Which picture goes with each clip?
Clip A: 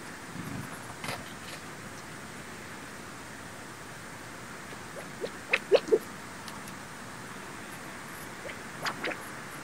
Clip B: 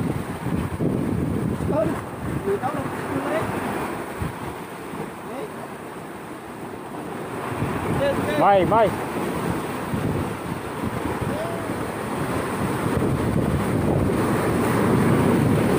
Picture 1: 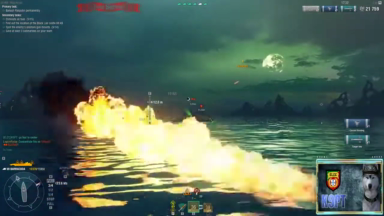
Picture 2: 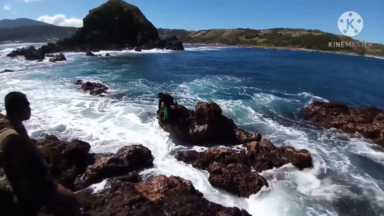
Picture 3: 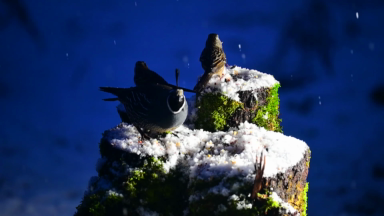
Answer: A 3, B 2